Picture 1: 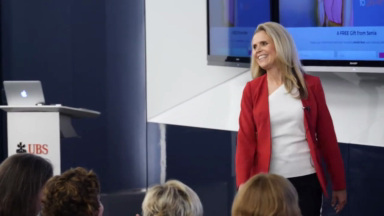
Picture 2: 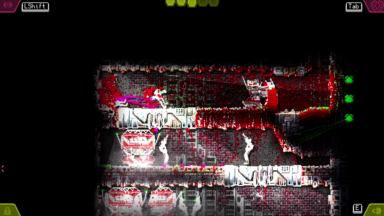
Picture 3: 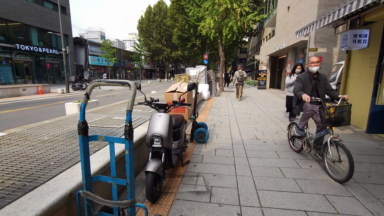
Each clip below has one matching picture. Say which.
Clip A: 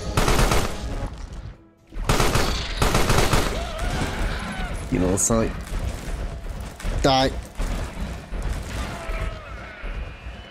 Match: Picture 2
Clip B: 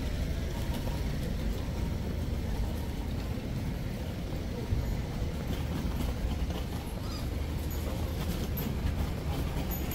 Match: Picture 3